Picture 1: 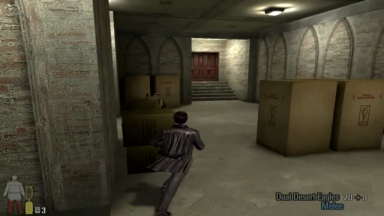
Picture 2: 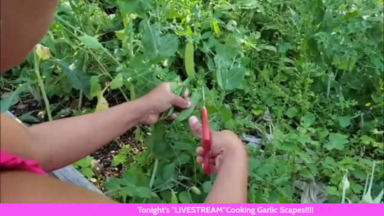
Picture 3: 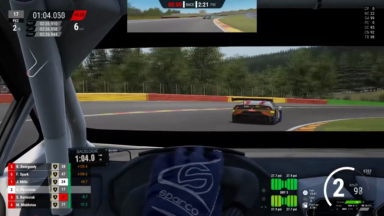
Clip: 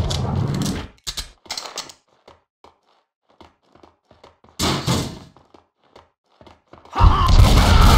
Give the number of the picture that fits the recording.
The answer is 1